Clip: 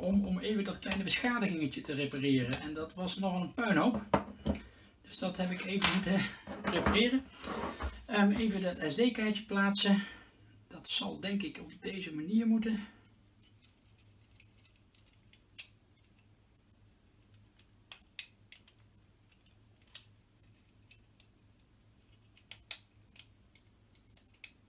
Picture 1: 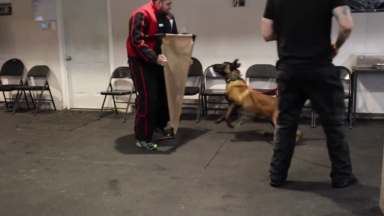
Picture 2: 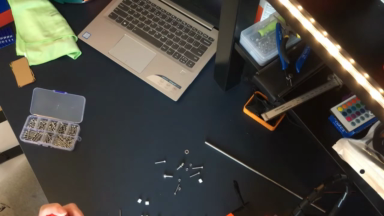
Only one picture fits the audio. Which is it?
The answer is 2